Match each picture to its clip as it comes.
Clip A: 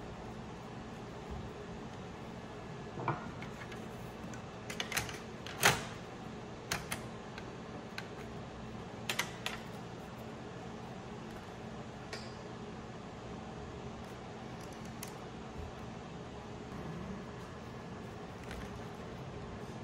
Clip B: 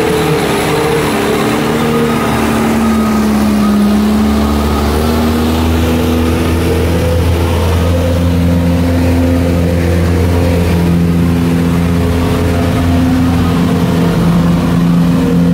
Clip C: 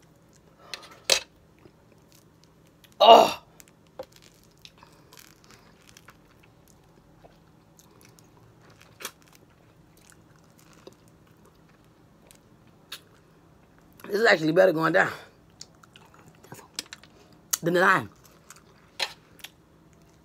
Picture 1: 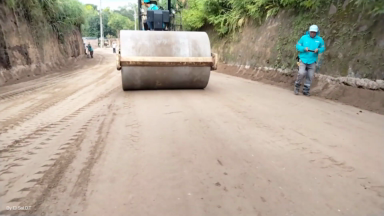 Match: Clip B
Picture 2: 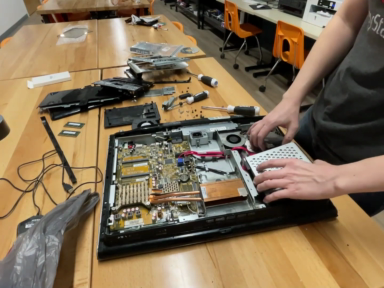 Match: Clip A